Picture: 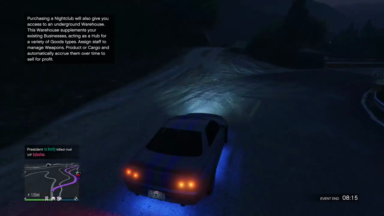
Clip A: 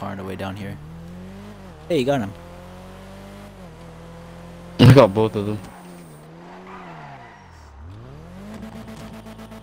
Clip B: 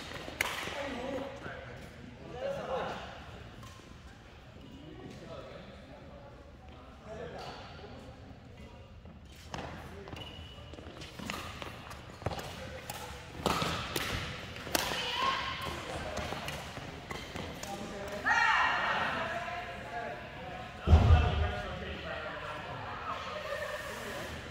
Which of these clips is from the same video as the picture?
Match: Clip A